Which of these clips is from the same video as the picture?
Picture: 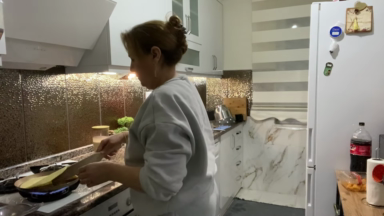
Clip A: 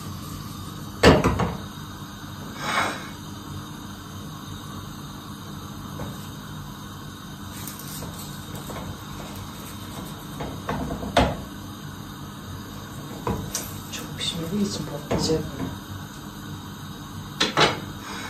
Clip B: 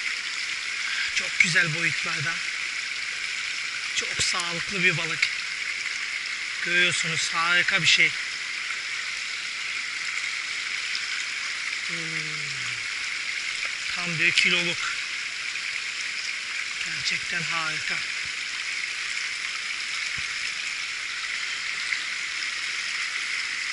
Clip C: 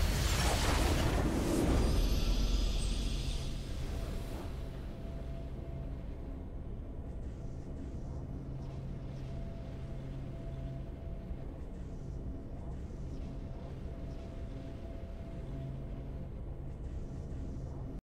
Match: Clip A